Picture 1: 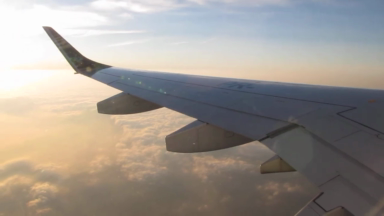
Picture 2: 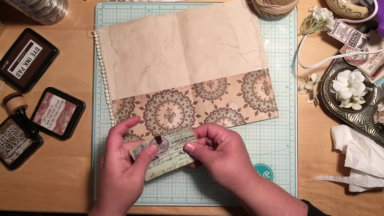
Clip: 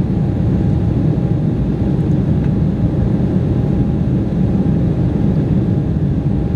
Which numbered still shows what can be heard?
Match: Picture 1